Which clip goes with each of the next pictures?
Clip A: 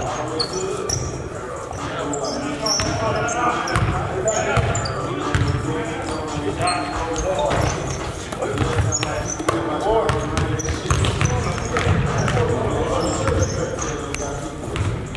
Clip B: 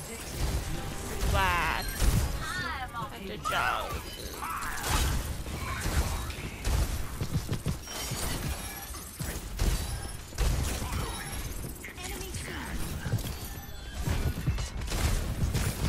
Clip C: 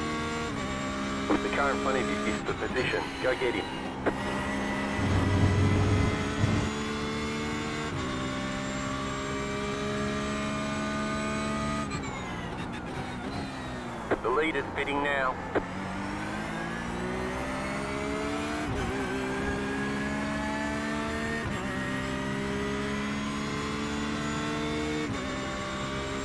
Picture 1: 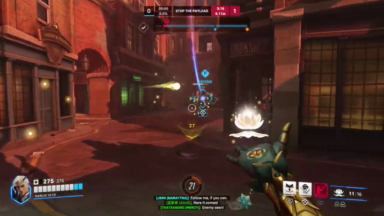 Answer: B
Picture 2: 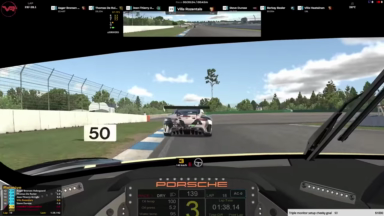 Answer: C